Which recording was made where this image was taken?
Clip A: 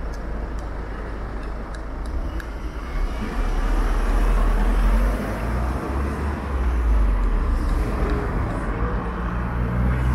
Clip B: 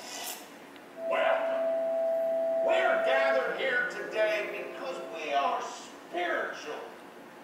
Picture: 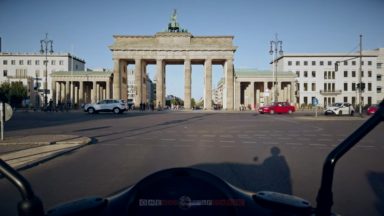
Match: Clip A